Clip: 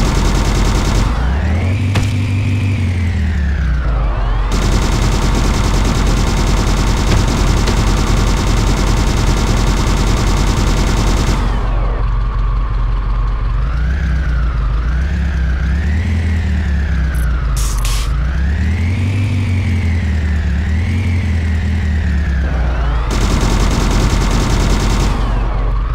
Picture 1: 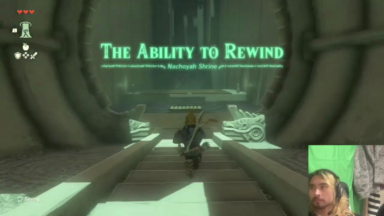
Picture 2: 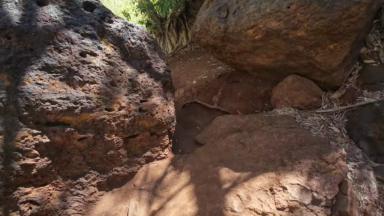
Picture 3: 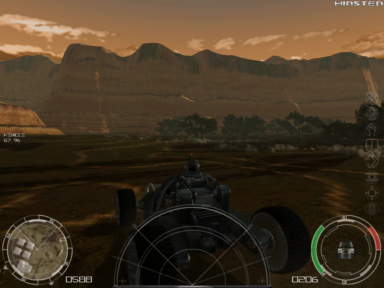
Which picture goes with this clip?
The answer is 3